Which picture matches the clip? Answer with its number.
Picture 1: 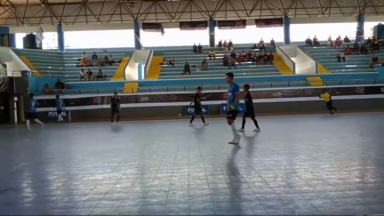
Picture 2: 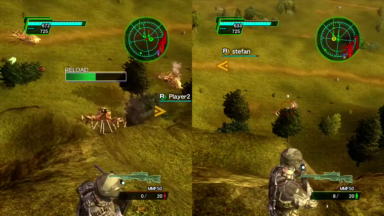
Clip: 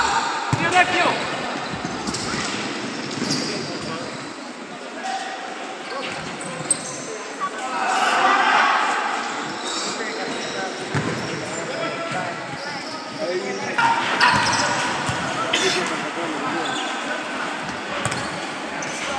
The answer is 1